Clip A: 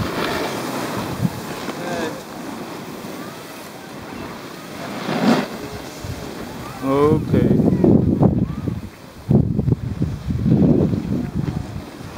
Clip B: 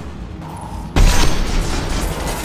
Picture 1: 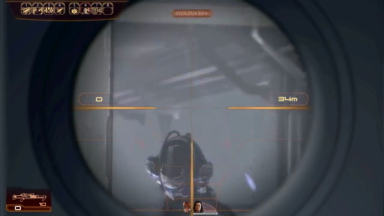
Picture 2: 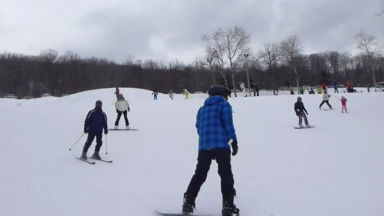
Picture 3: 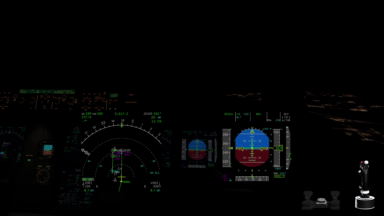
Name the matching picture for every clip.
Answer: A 2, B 1